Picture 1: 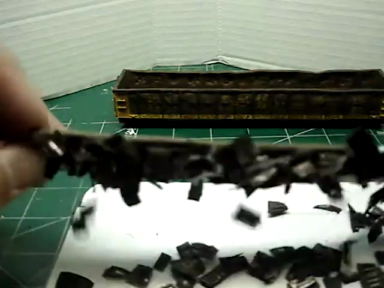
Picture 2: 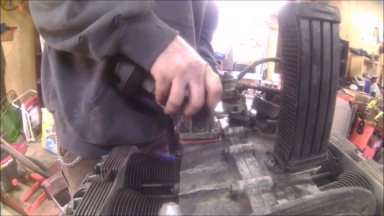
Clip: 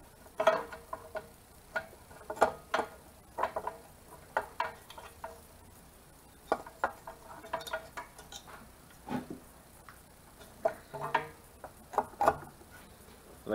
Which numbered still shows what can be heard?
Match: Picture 2